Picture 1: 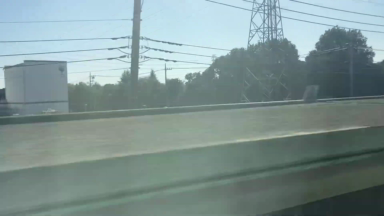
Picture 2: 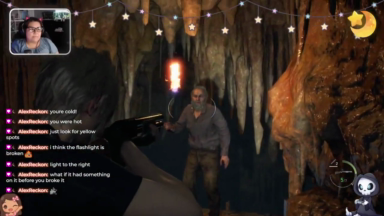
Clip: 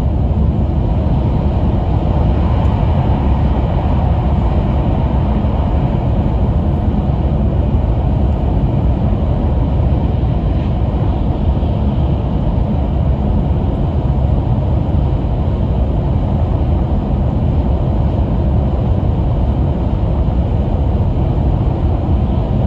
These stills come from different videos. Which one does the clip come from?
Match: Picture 1